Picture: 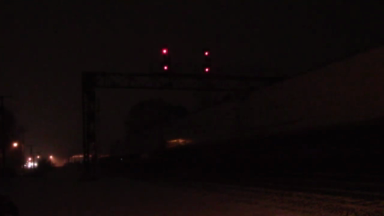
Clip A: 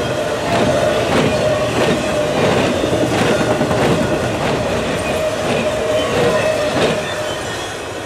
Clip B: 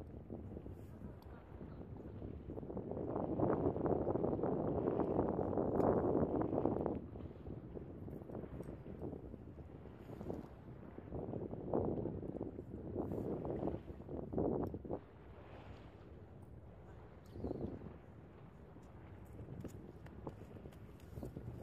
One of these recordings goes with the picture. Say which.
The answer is A